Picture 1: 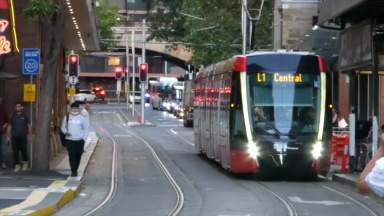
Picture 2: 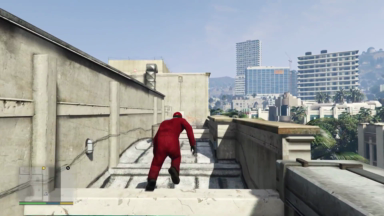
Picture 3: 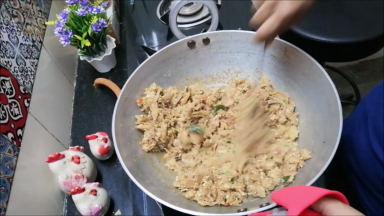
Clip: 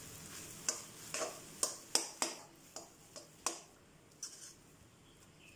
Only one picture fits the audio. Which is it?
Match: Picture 3